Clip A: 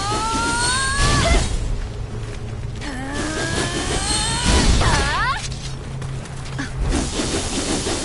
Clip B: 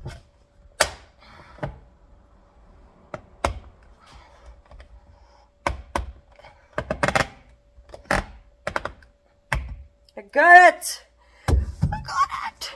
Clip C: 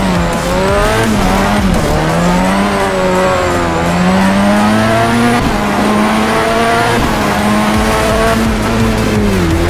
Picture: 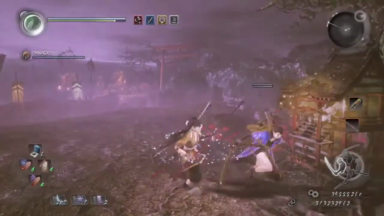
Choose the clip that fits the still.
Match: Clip A